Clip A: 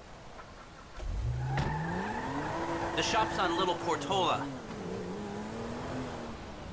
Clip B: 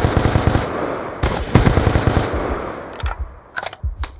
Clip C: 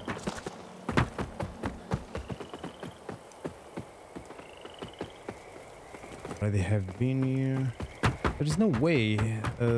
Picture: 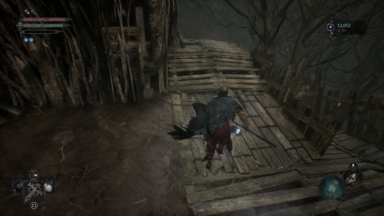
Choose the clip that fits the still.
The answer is C